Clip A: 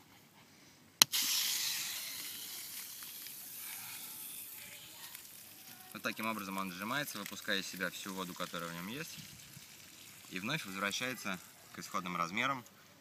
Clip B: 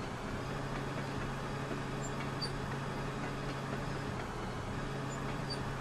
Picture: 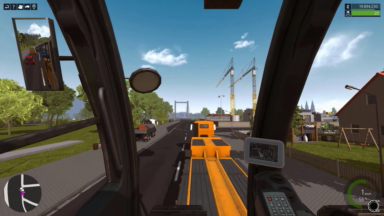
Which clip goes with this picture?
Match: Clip B